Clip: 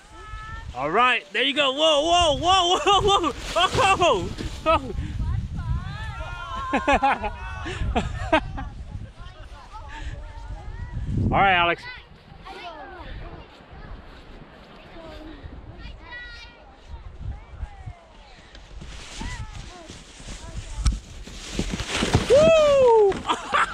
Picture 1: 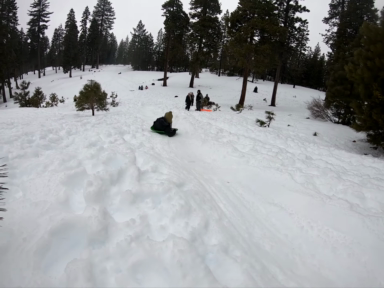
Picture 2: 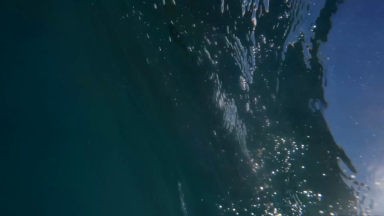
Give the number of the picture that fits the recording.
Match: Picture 1